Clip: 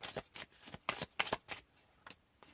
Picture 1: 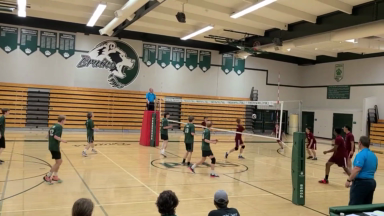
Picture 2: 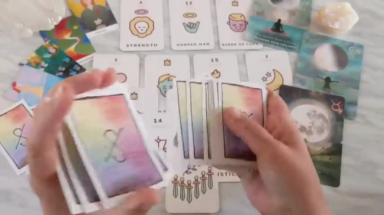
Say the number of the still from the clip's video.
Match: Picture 2